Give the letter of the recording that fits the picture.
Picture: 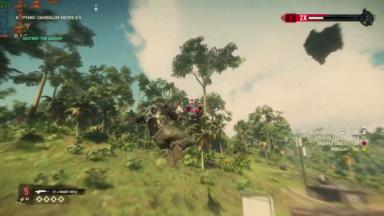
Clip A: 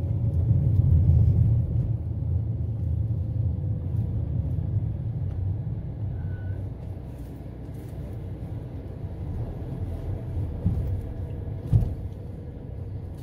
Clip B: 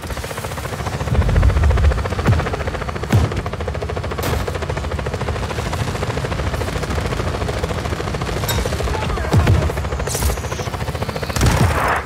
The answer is B